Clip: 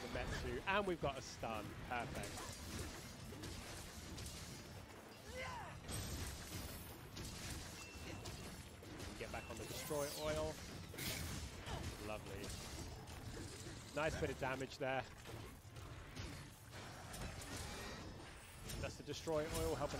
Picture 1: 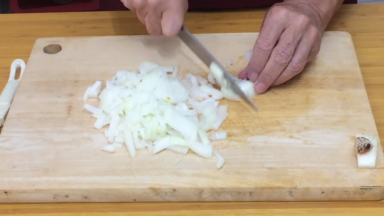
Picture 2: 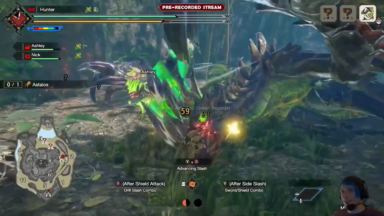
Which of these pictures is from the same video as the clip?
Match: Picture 2